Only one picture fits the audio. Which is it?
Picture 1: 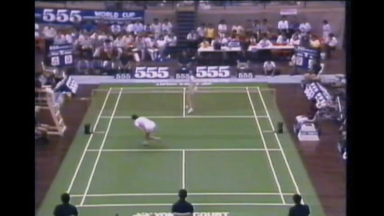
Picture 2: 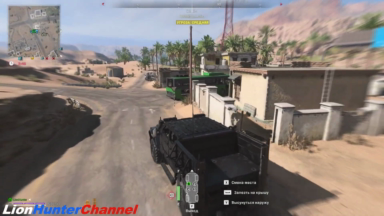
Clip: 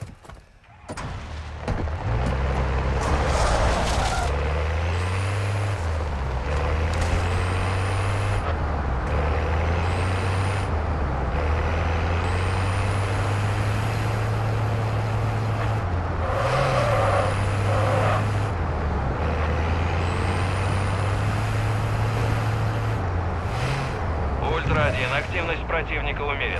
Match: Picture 2